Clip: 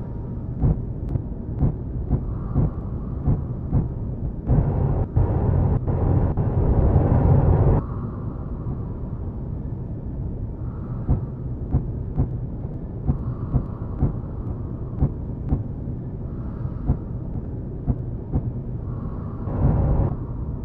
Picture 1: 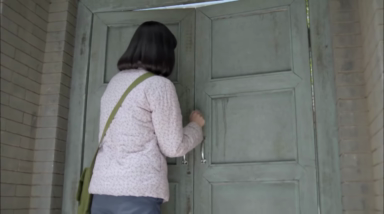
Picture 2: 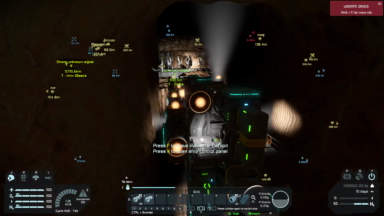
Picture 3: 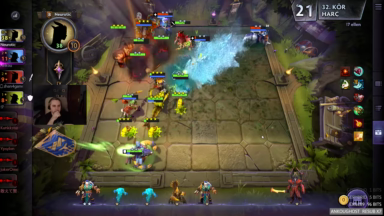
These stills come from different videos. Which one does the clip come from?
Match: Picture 2